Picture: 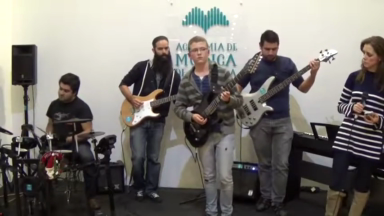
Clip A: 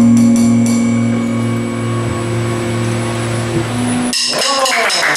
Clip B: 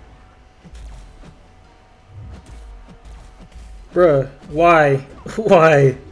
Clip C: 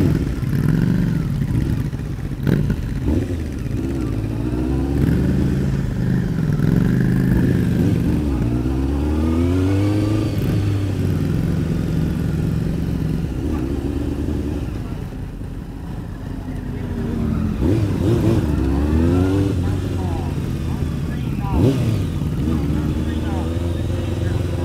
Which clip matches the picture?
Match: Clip A